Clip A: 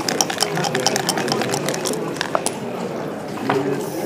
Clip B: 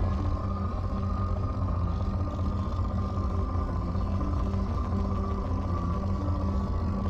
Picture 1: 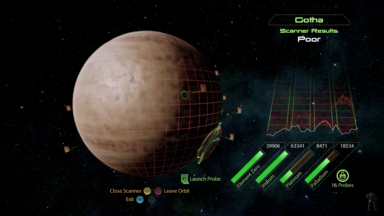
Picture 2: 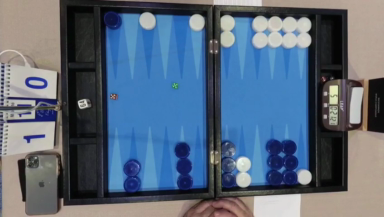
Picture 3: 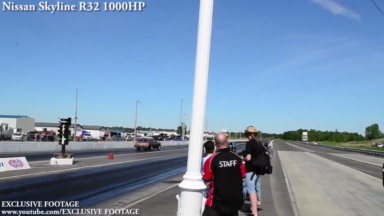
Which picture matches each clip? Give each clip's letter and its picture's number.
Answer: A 2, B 1